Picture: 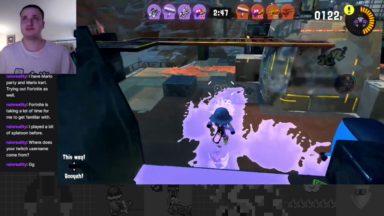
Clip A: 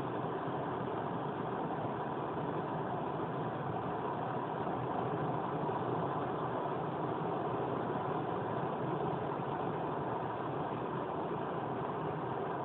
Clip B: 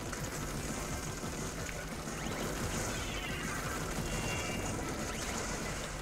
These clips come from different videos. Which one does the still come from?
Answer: B